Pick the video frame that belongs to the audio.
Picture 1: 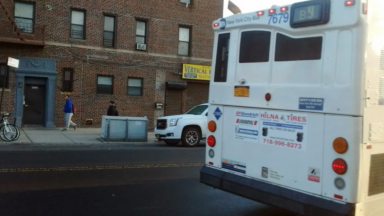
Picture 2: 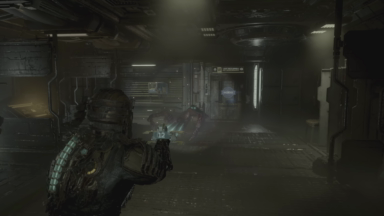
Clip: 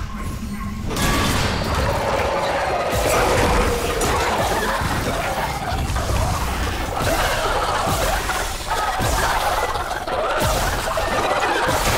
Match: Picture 2